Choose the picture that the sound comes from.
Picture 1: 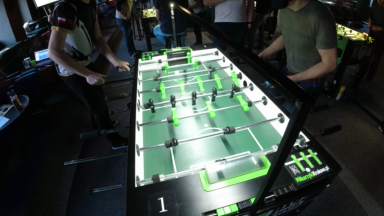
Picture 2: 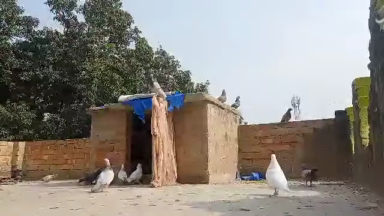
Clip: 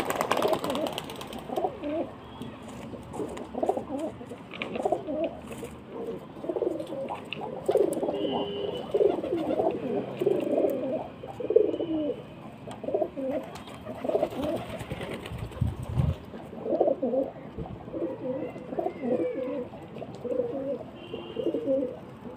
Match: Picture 2